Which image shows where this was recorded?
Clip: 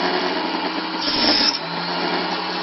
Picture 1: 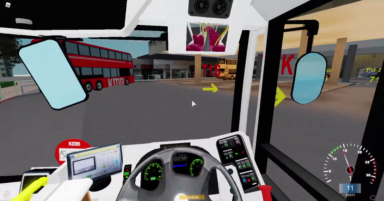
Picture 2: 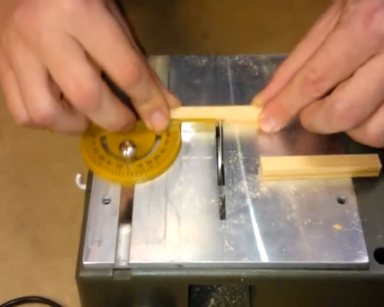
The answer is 2